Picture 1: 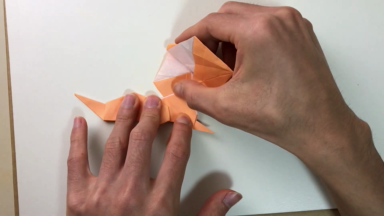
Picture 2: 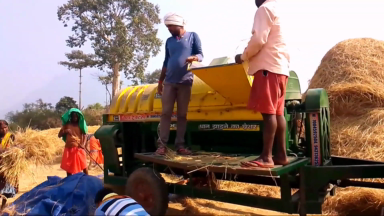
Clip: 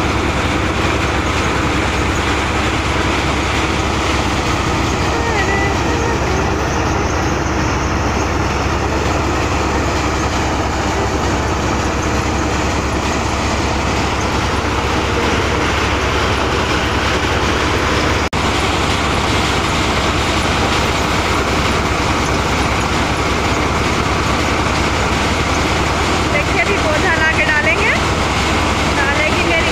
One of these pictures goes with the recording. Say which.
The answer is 2